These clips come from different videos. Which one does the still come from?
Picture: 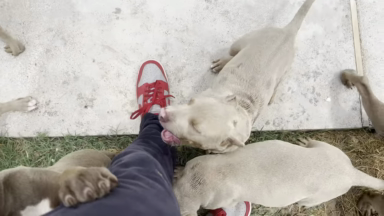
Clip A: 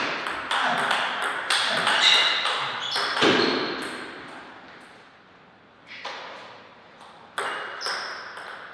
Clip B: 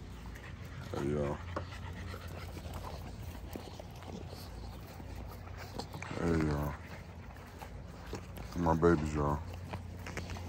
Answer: B